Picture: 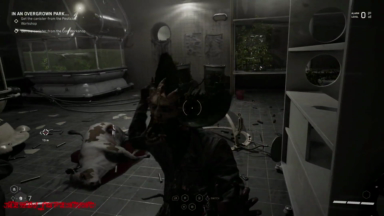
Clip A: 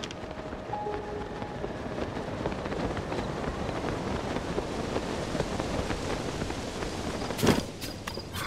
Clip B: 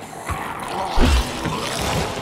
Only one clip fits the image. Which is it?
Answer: B